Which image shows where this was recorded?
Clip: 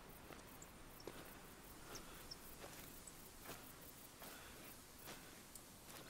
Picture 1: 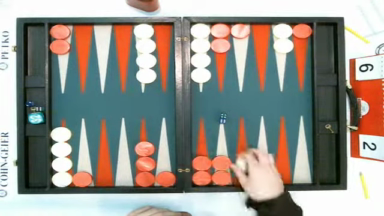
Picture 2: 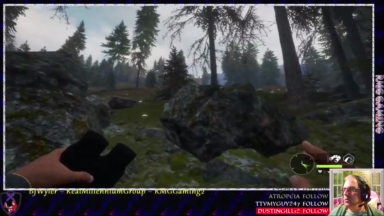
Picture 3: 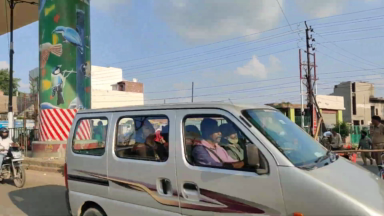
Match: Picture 2